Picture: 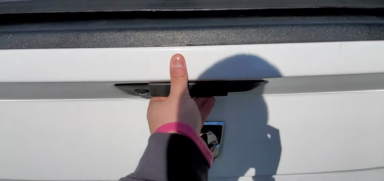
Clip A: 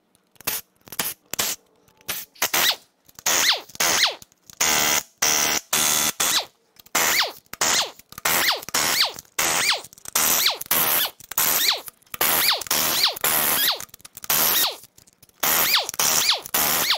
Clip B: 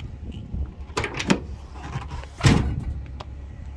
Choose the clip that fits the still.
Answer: B